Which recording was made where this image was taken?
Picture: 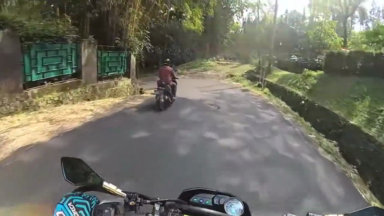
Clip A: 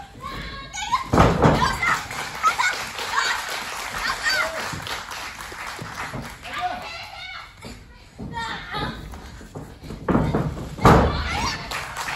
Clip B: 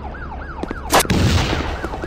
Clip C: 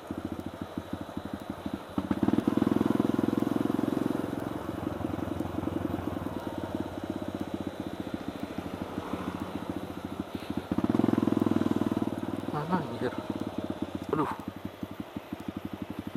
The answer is C